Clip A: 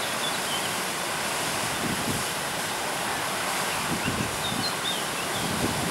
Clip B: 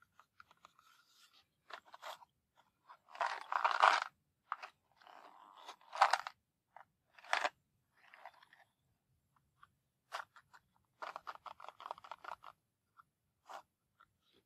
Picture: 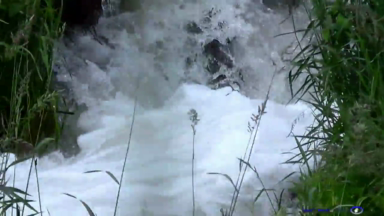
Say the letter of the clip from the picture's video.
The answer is A